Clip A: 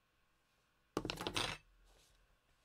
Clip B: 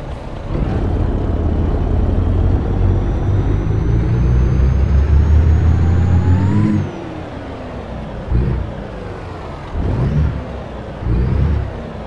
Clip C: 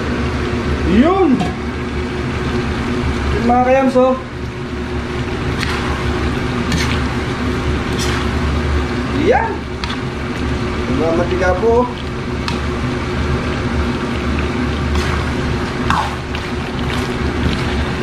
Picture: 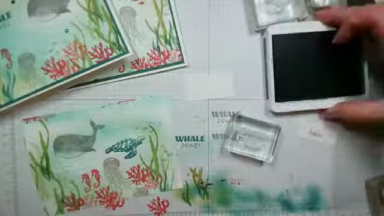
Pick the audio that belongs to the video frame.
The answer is A